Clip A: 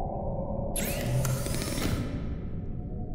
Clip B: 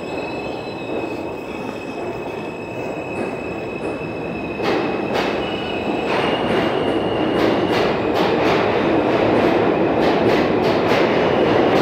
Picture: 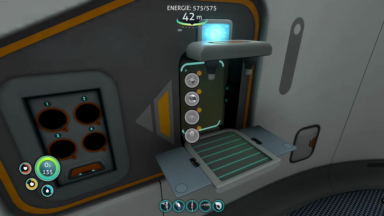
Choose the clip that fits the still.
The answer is A